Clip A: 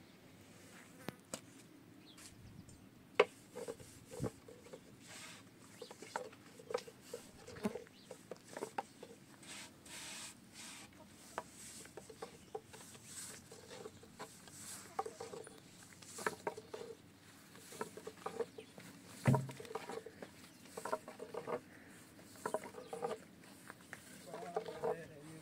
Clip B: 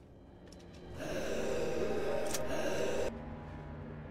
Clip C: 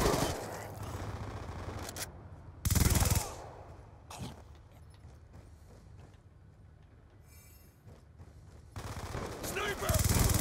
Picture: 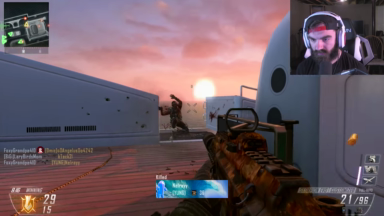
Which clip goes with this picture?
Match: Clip C